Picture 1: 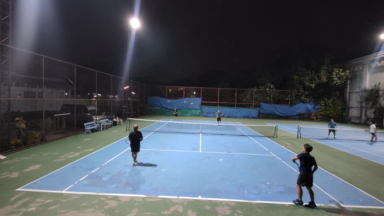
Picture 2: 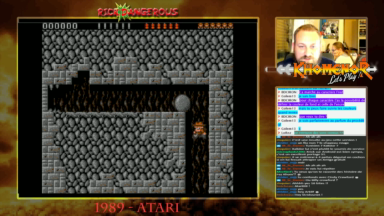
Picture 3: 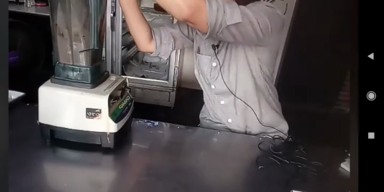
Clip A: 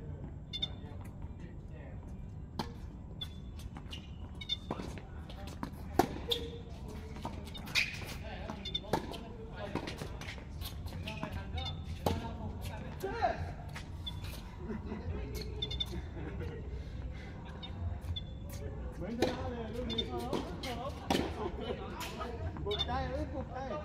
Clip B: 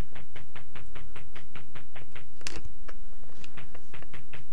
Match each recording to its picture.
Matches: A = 1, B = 2